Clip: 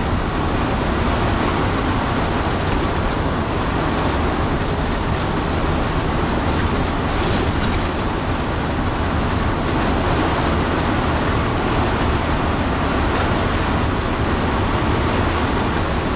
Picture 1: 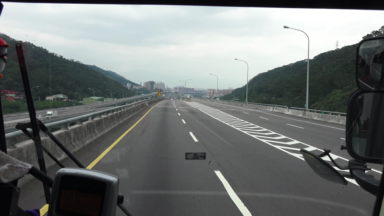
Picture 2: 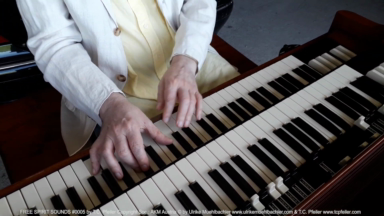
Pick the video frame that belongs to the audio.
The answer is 1